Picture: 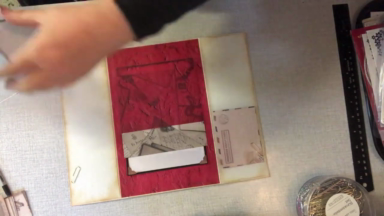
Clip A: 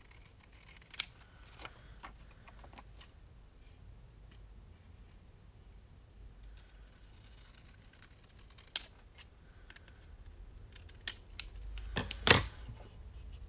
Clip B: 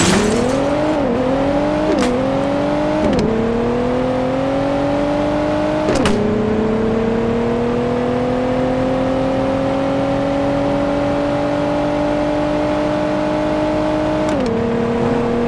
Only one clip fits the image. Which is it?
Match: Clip A